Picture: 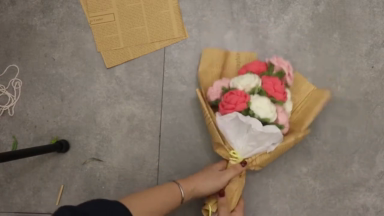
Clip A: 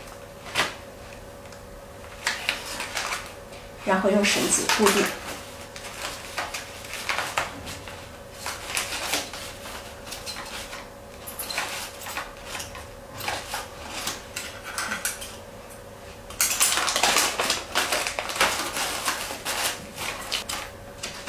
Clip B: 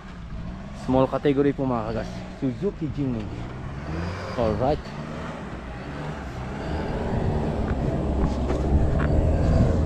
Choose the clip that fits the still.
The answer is A